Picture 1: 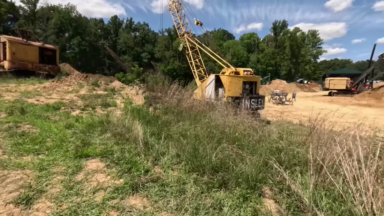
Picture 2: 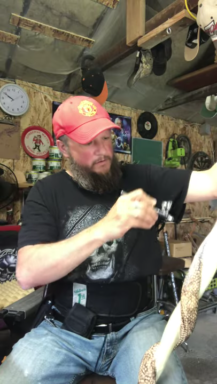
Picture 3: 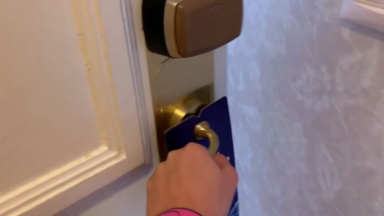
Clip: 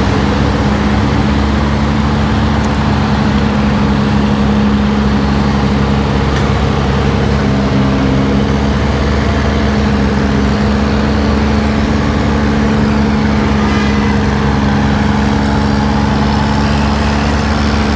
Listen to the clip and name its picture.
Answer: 1